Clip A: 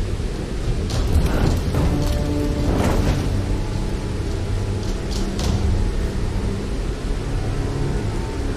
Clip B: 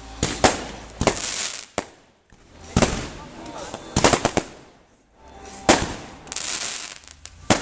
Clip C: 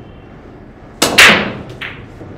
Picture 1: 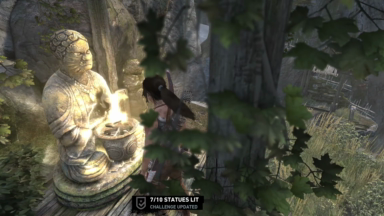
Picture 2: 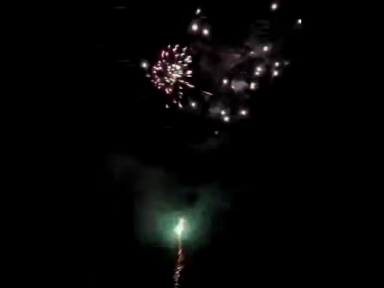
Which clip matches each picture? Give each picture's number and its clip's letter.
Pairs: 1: A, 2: B